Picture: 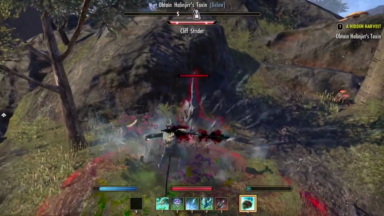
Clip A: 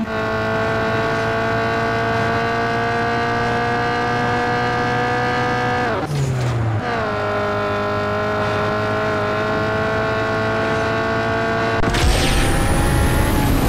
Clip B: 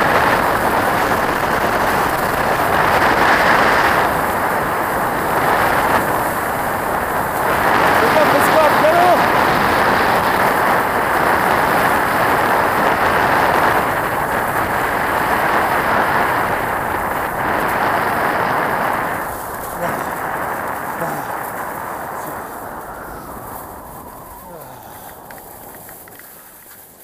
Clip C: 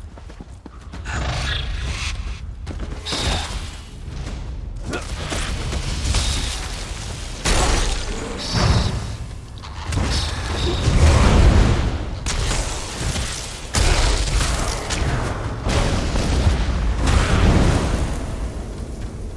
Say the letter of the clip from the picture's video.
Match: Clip C